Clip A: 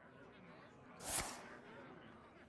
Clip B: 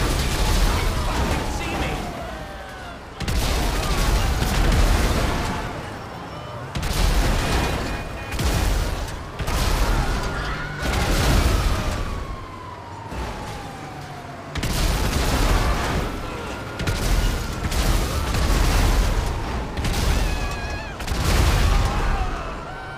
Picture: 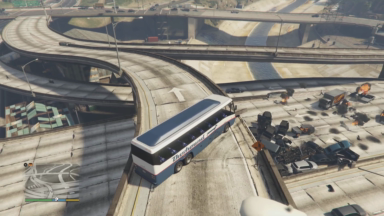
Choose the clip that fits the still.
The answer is B